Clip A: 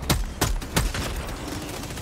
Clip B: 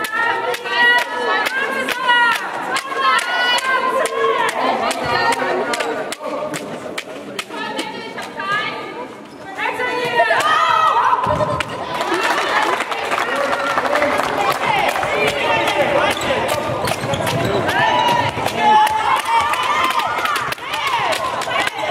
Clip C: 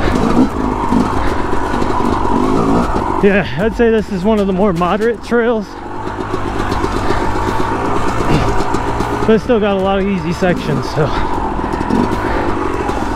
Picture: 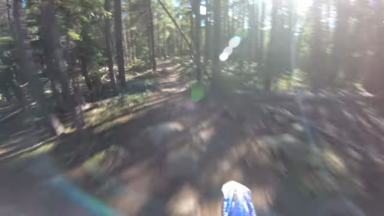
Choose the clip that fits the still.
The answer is C